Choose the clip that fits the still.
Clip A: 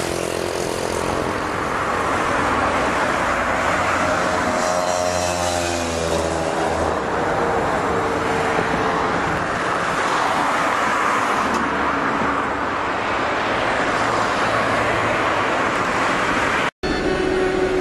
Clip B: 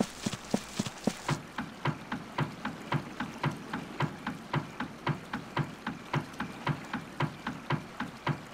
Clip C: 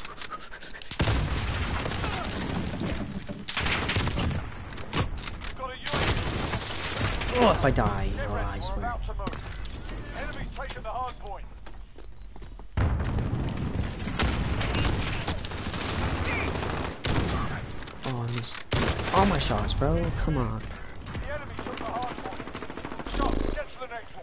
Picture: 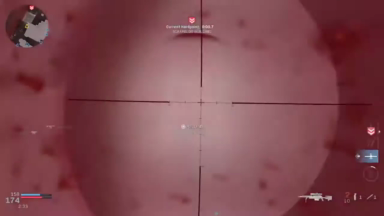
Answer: C